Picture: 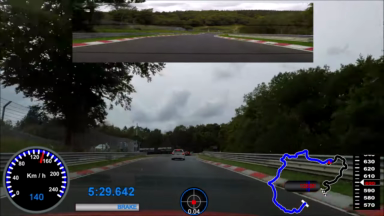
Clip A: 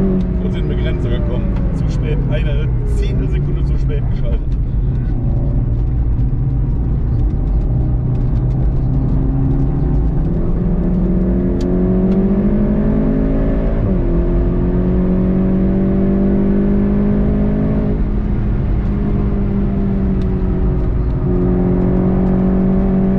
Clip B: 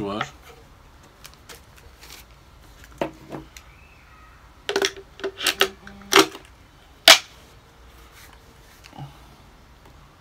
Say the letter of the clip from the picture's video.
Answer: A